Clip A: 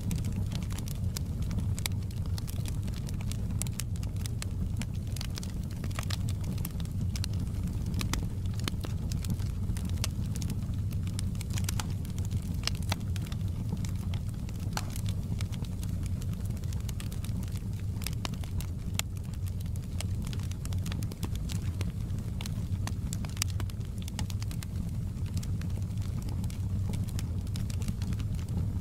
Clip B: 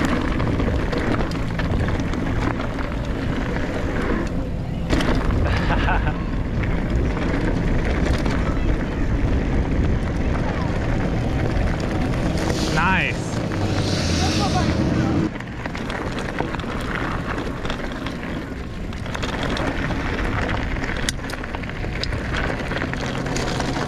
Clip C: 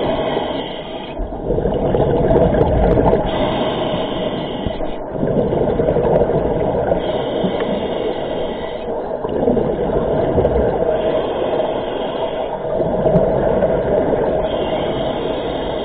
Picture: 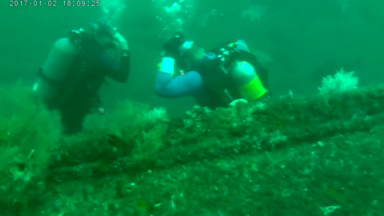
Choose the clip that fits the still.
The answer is C